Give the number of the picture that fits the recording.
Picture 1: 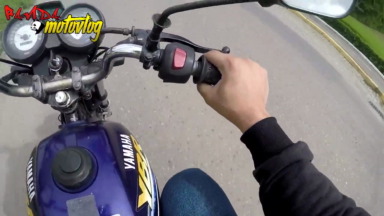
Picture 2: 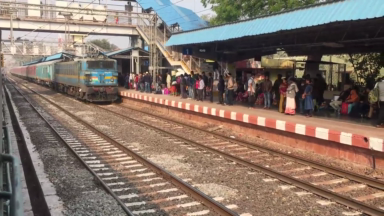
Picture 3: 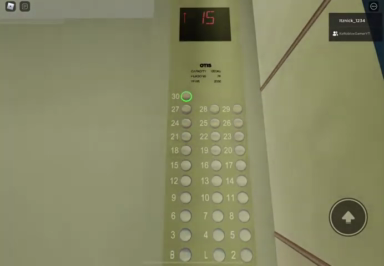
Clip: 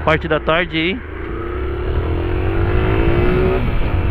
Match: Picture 1